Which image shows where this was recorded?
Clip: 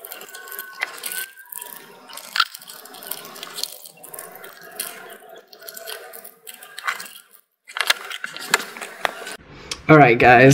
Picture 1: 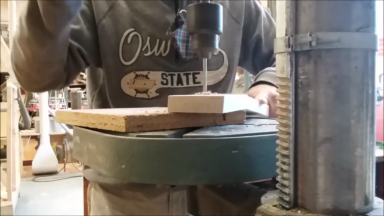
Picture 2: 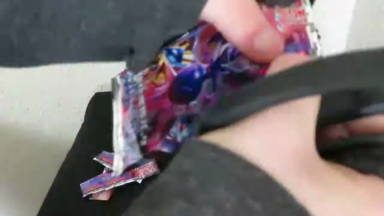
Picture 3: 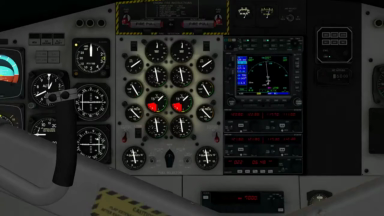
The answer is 2